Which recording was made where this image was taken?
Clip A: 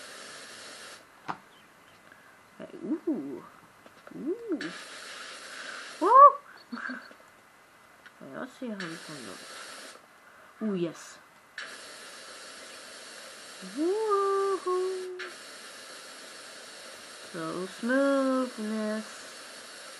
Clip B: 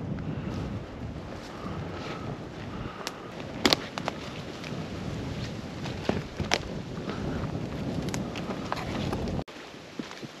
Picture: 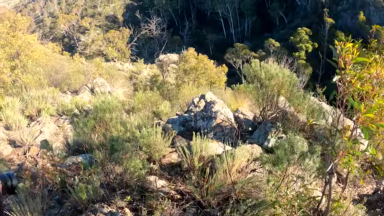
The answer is B